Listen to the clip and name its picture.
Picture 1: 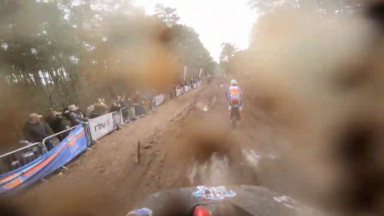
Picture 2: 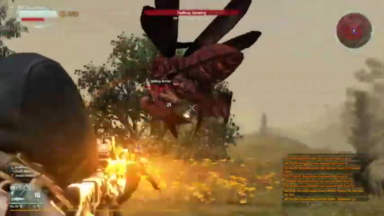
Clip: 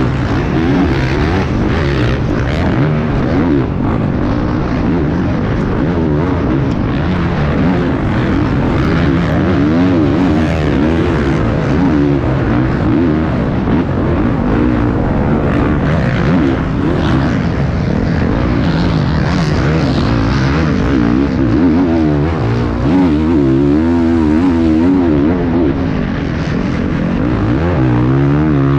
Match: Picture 1